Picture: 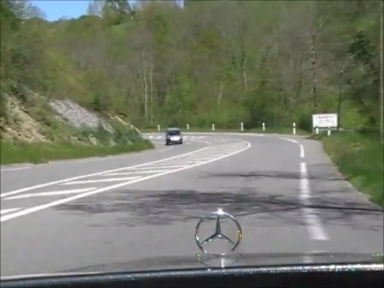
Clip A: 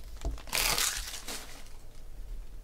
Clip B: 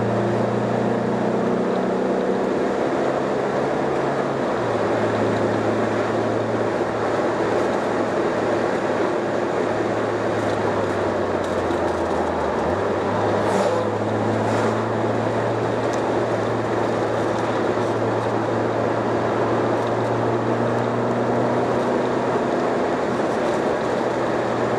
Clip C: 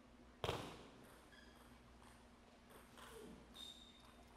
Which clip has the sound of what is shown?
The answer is B